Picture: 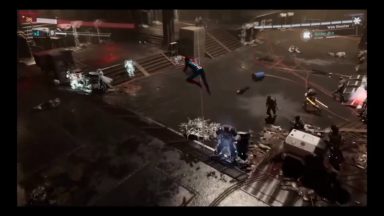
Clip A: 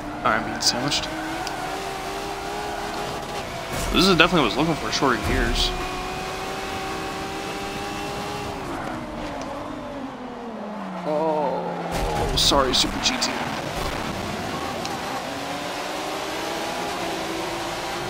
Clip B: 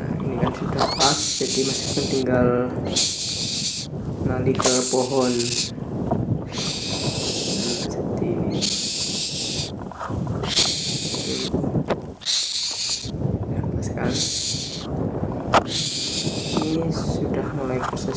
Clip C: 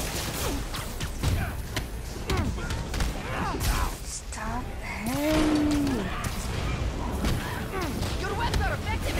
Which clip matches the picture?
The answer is C